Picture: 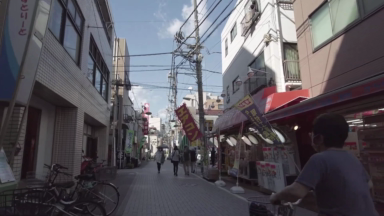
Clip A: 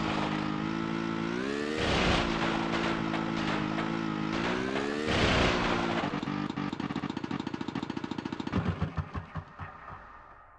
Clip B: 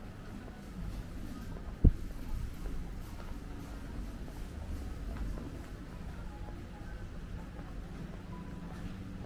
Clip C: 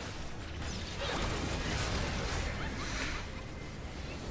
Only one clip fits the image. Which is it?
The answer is B